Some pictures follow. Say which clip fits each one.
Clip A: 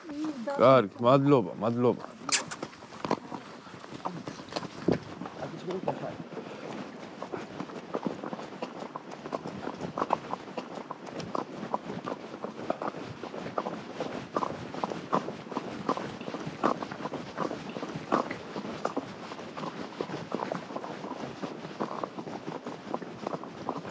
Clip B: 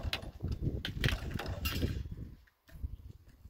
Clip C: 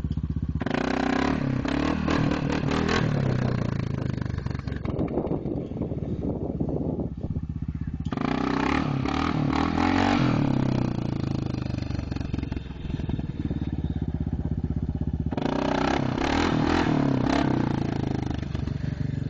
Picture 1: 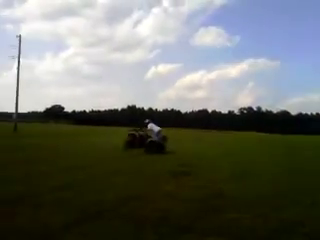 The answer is C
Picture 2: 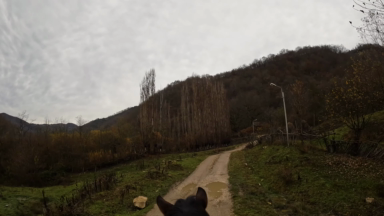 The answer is A